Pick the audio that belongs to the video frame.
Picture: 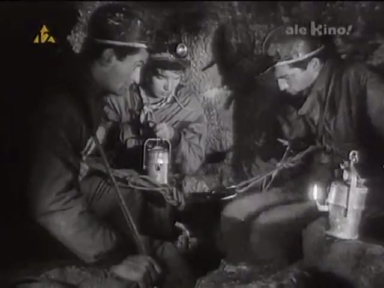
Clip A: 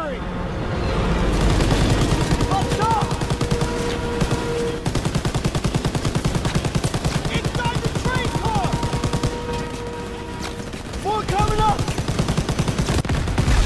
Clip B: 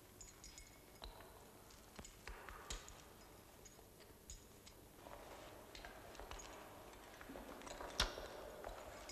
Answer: B